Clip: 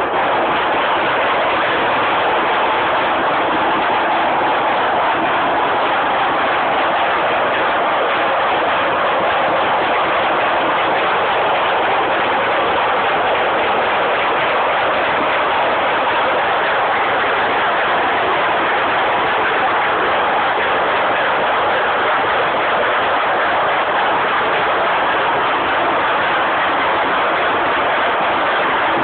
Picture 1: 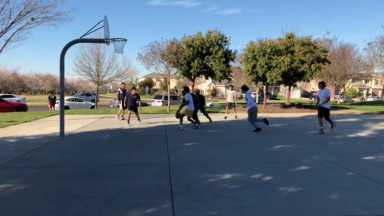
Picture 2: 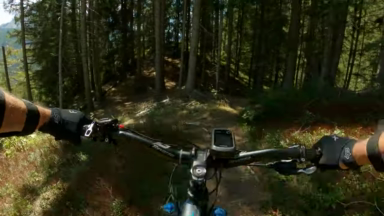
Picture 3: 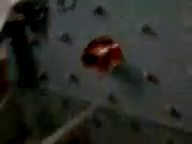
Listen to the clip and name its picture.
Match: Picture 3